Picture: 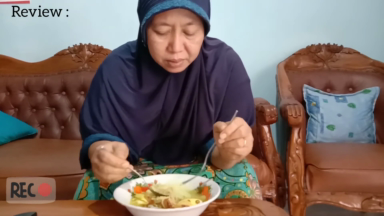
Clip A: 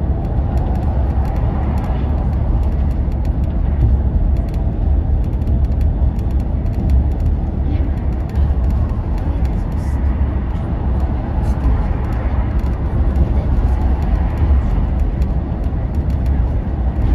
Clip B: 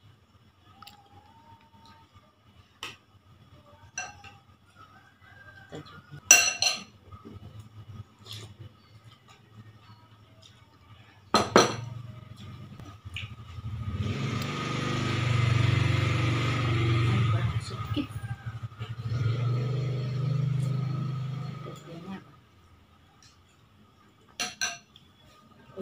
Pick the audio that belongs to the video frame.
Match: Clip B